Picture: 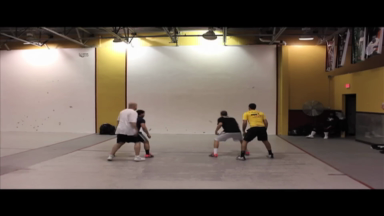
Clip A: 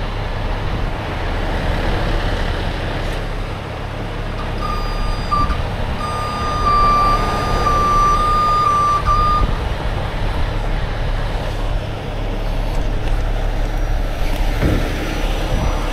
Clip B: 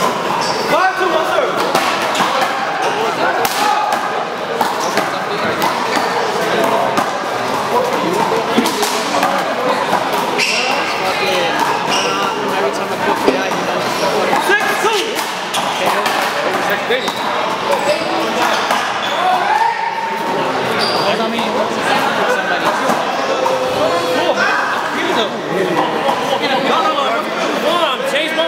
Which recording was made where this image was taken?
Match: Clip B